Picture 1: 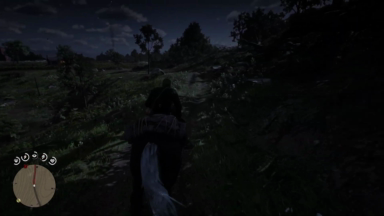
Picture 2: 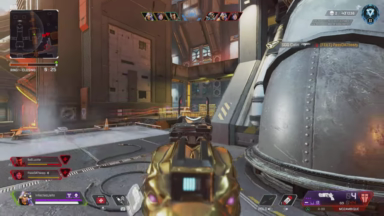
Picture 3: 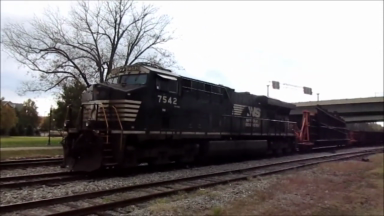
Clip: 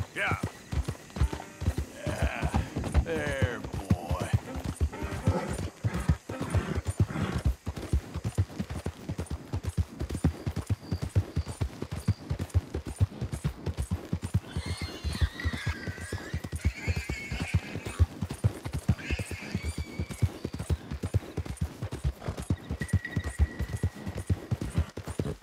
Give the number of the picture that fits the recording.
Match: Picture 1